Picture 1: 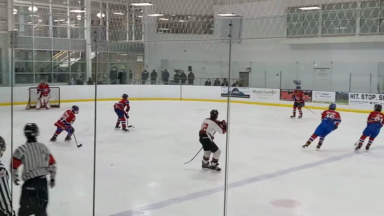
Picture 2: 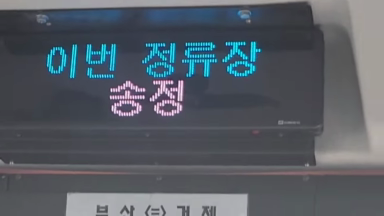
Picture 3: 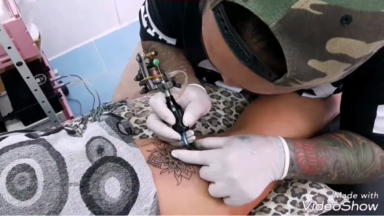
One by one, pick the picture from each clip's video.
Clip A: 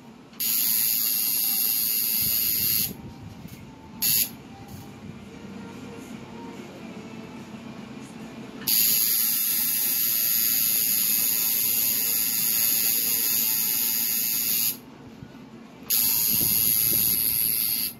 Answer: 3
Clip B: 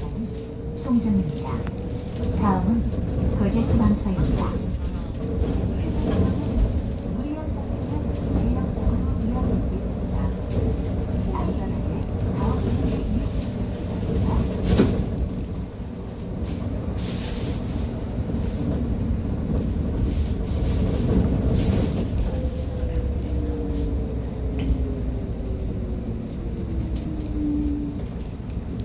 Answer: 2